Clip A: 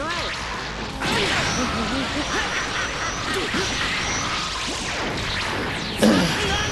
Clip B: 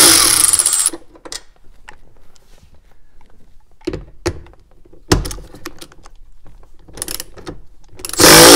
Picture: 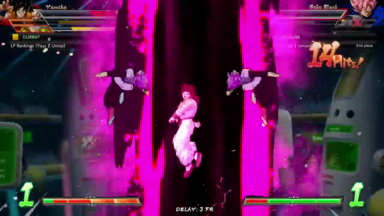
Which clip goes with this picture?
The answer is A